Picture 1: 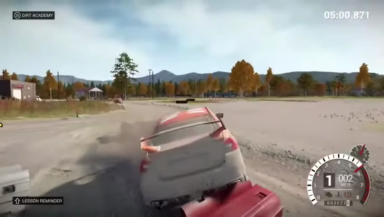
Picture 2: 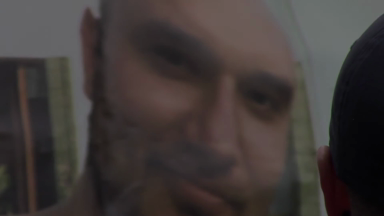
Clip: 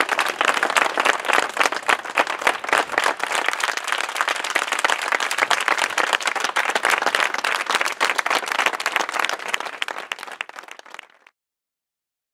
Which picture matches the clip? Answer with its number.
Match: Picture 2